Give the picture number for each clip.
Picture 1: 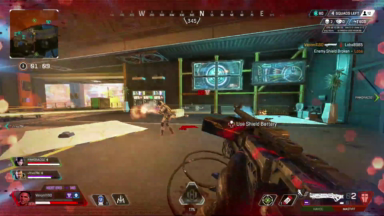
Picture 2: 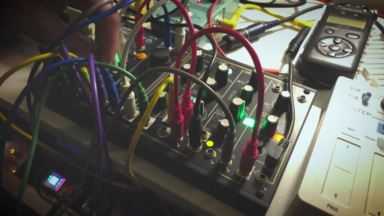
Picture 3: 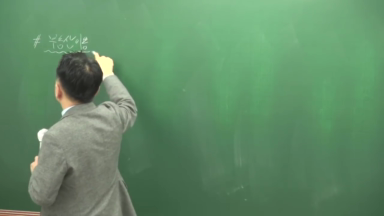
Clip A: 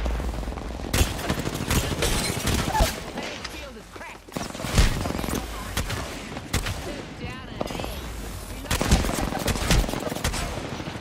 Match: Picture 1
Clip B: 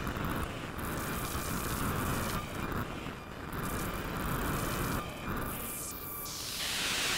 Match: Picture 2